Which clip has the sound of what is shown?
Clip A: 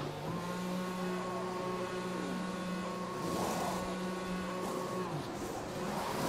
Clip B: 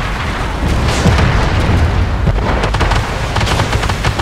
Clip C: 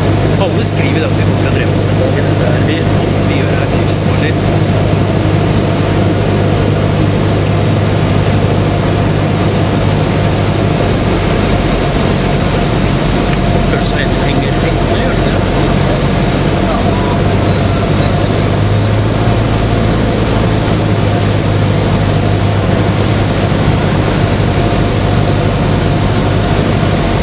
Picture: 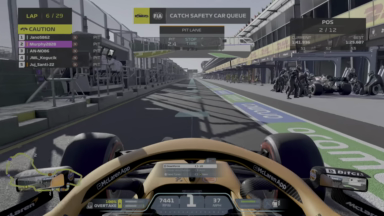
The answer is A